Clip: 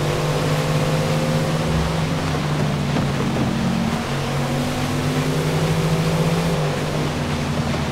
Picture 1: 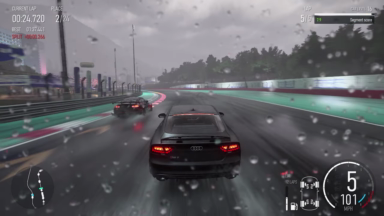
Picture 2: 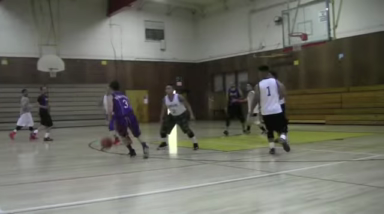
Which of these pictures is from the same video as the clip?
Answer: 1